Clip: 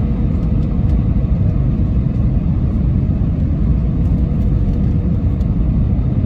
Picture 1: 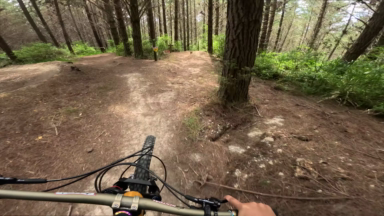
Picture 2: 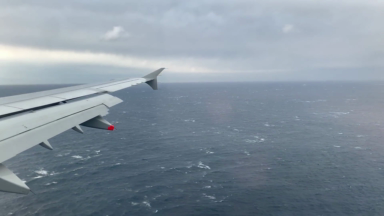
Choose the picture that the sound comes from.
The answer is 2